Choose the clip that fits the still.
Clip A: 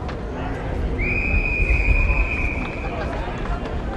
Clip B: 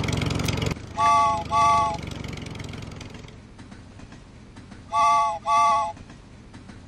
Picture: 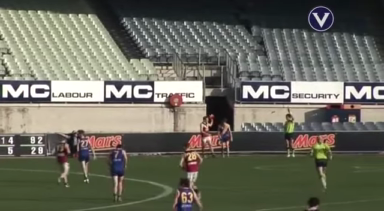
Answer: A